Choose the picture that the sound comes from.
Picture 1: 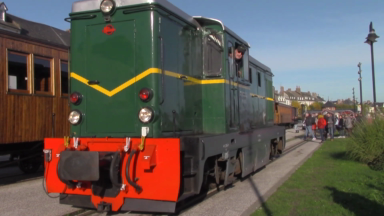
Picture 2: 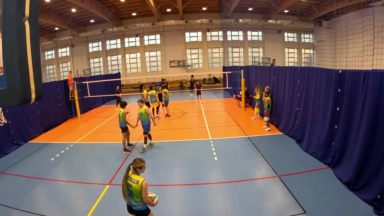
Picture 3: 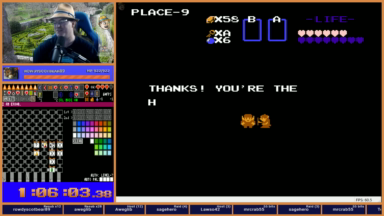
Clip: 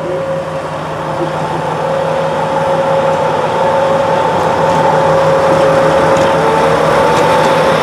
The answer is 1